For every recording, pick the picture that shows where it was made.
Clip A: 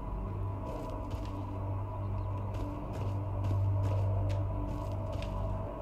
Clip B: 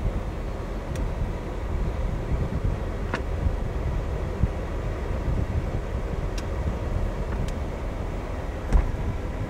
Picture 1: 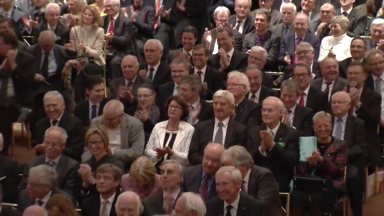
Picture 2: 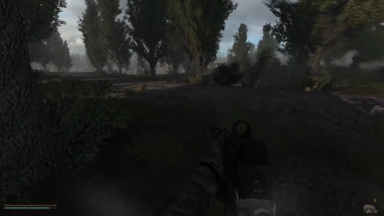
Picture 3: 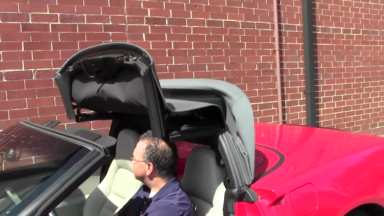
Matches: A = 2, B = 3